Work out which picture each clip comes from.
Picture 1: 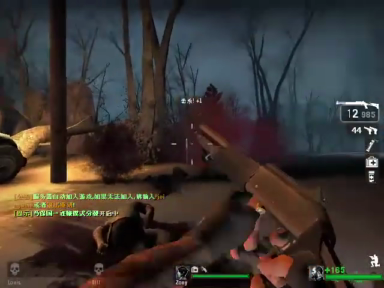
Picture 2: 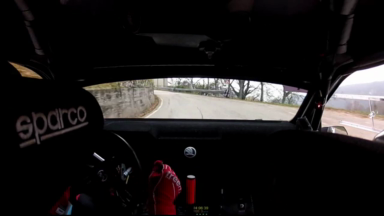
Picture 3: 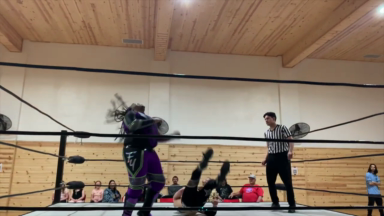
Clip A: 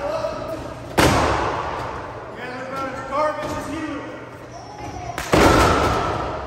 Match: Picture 3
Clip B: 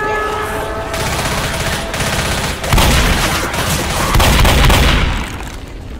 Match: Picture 1